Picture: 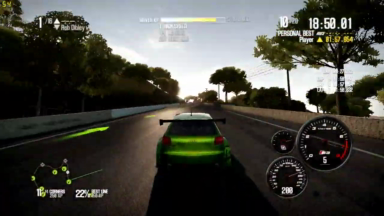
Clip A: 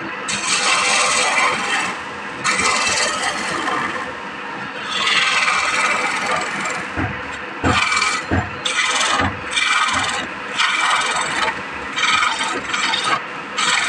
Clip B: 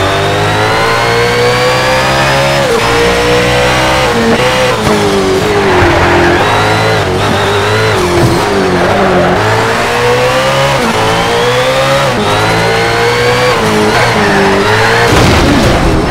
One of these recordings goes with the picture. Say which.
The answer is B